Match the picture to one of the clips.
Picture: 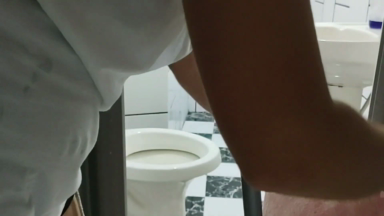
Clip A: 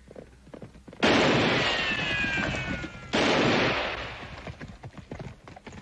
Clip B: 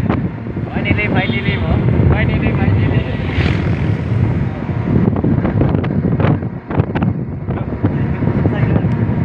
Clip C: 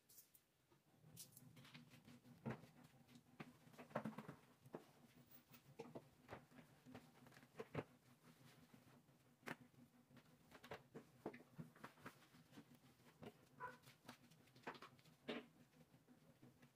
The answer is C